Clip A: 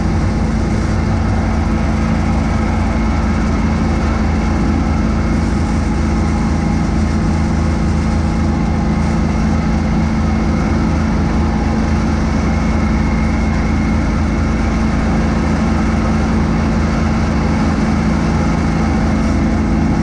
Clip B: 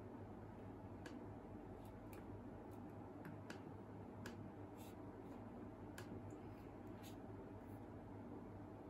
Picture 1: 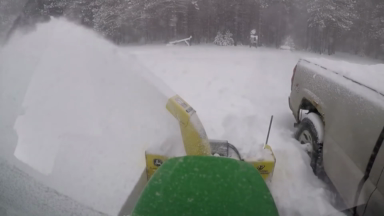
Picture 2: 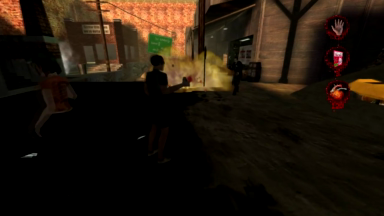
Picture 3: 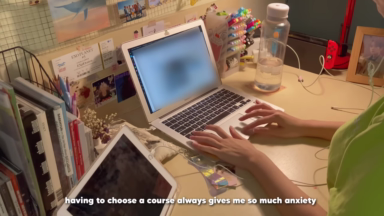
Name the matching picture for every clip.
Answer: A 1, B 3